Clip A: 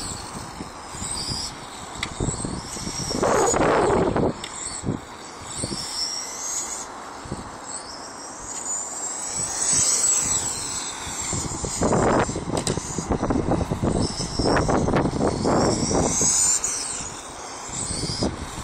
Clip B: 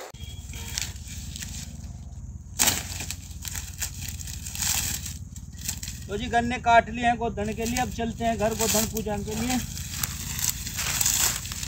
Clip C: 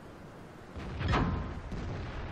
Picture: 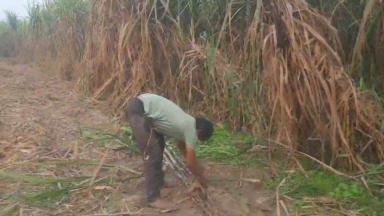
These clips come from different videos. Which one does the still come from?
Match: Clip B